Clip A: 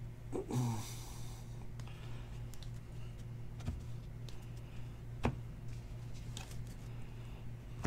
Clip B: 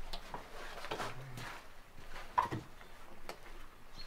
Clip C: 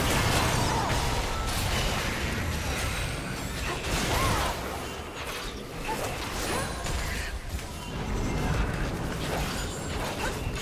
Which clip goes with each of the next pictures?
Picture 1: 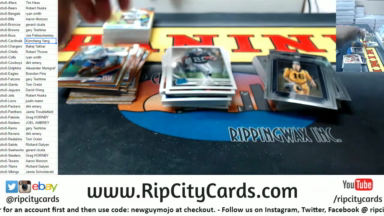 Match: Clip A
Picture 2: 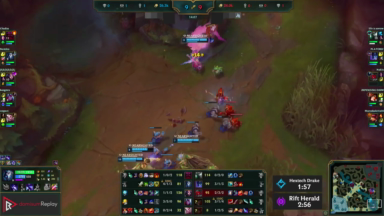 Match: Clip C